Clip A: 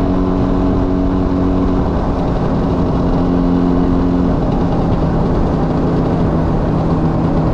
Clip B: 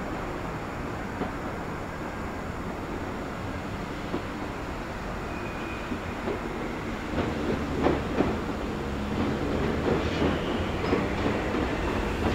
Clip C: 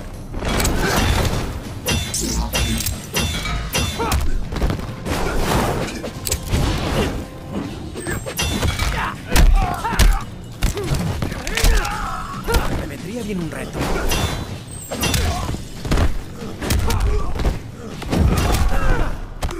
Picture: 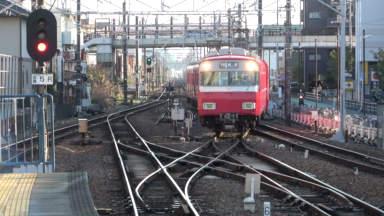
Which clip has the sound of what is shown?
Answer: B